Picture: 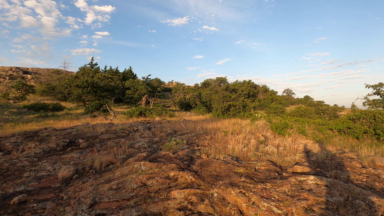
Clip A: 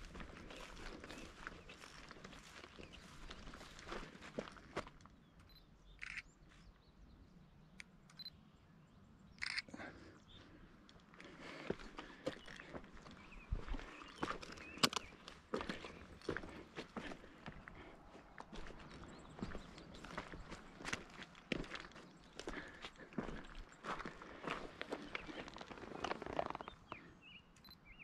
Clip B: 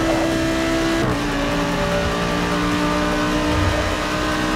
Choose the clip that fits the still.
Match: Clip A